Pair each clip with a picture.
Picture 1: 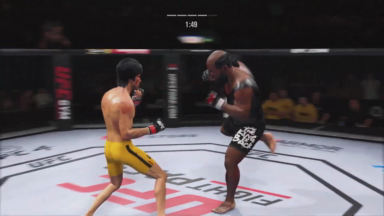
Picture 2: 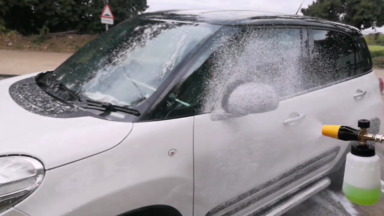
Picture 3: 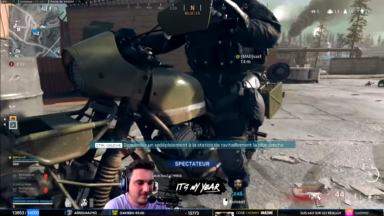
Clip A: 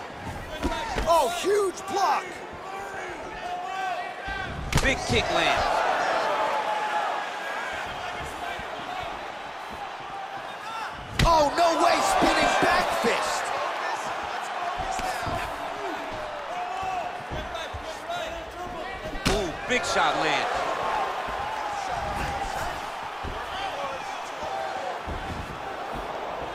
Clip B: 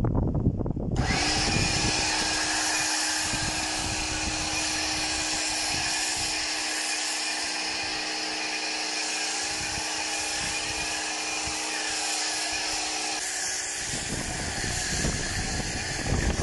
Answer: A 1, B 2